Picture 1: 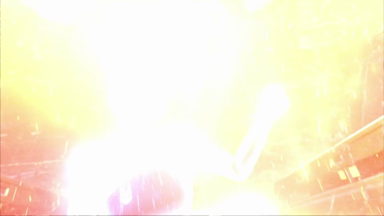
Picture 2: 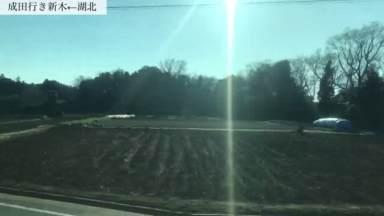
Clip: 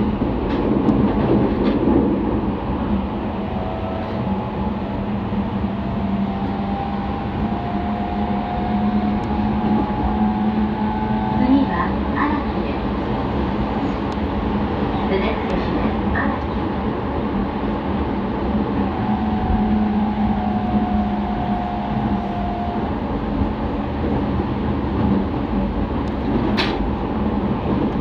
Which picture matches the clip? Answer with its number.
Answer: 2